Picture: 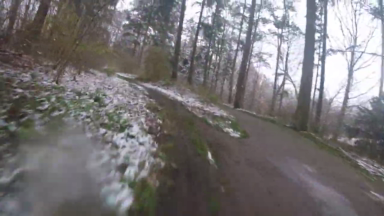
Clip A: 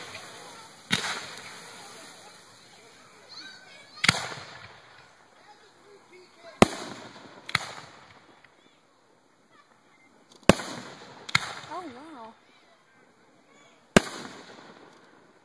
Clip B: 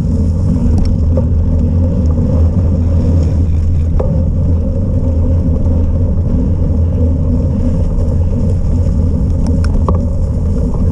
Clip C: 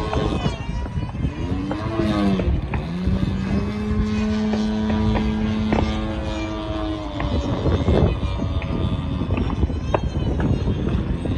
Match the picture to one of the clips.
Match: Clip B